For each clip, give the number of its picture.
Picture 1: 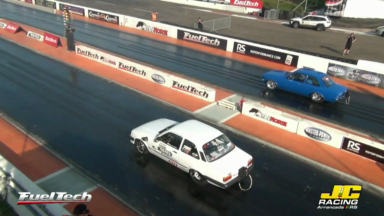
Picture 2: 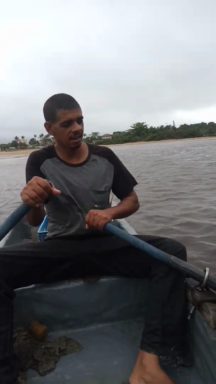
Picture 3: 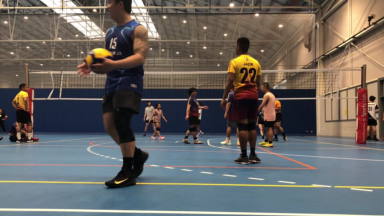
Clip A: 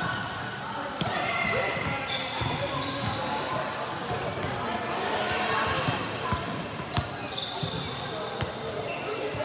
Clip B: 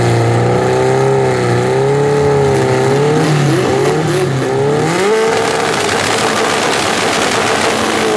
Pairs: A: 3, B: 1